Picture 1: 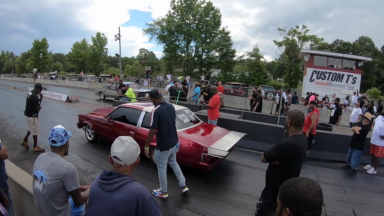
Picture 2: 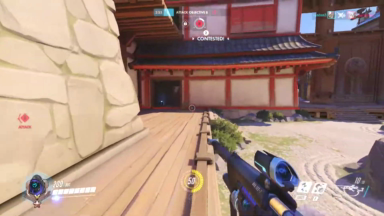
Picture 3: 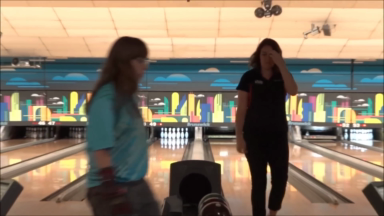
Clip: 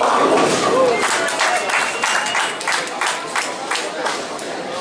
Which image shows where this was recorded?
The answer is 3